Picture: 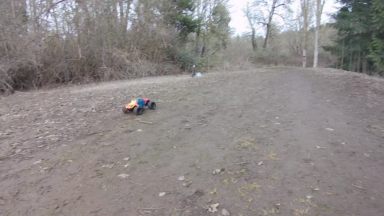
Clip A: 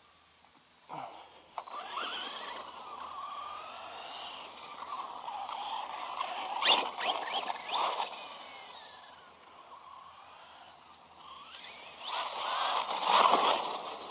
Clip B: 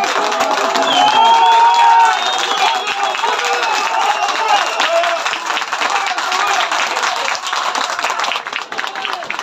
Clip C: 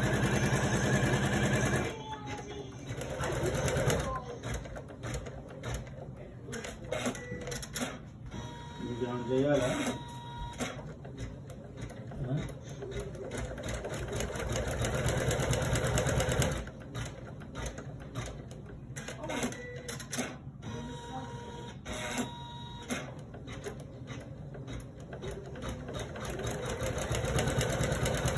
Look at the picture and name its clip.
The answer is A